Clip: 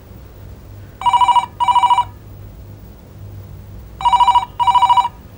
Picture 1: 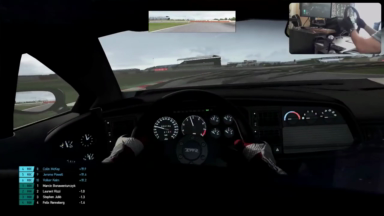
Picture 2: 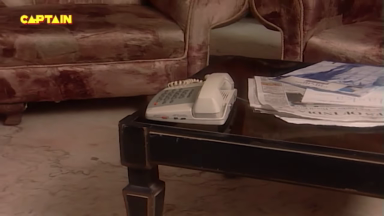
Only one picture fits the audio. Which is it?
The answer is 2